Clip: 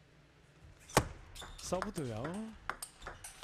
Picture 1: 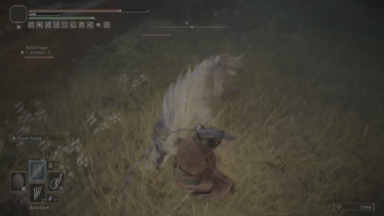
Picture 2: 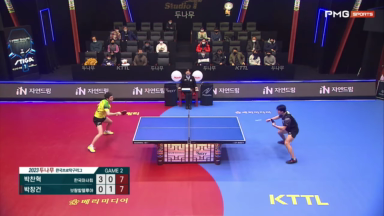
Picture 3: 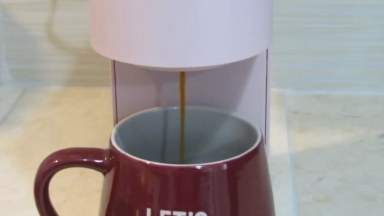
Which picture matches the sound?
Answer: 2